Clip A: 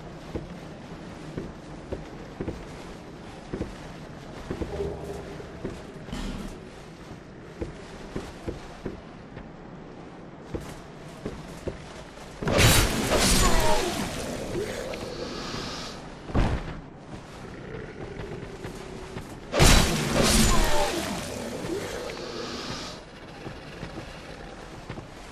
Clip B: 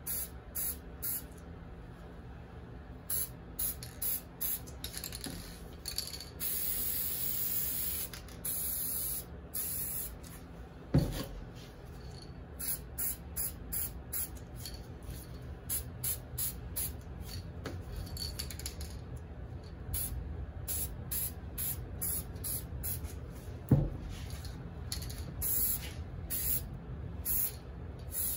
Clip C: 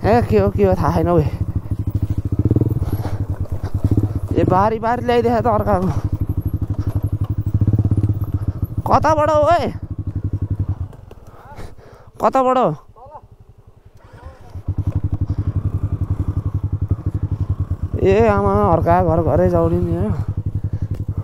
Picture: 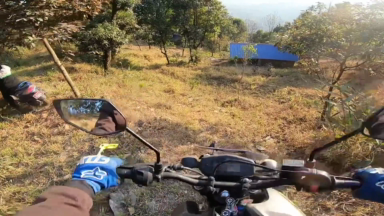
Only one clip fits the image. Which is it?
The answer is C